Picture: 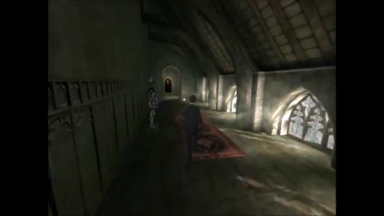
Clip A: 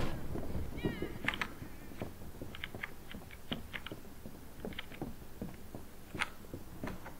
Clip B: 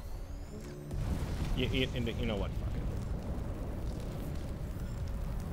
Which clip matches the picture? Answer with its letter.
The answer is A